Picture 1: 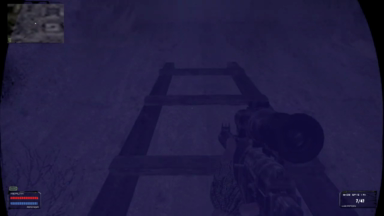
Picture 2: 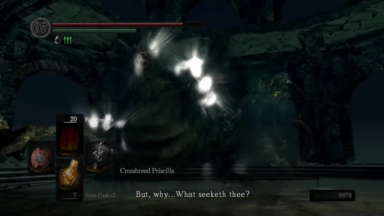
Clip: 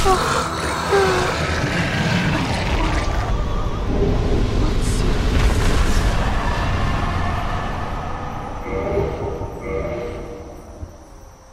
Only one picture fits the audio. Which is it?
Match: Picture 2